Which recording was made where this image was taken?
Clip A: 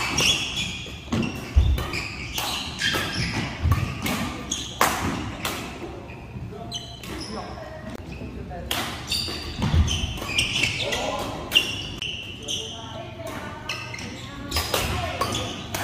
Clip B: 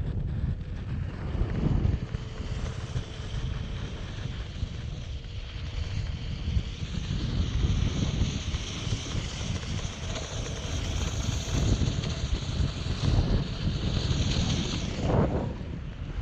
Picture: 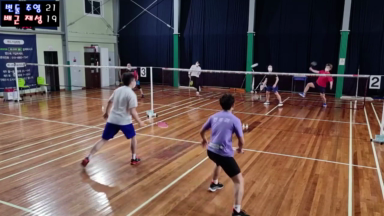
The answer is A